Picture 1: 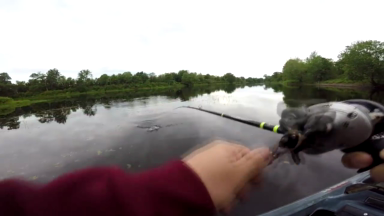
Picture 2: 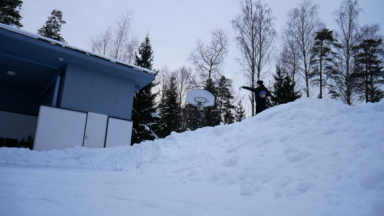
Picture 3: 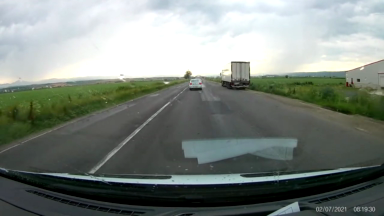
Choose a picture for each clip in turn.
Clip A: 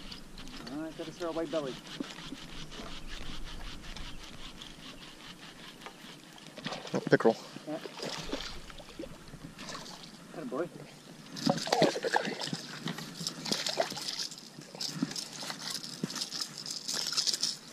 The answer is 1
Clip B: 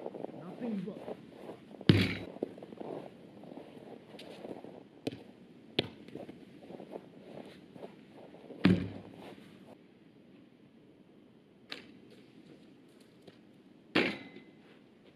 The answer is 2